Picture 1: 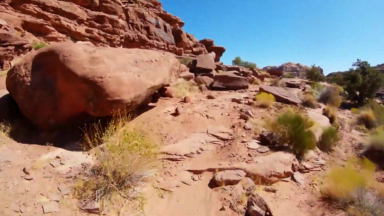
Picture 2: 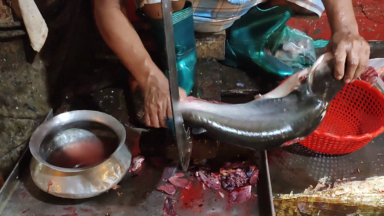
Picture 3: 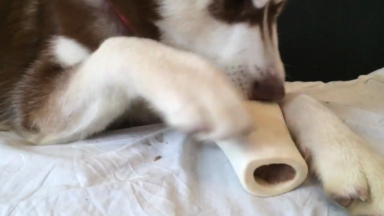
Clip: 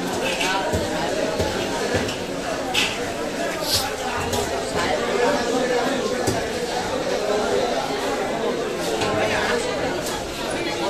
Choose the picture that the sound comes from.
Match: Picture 2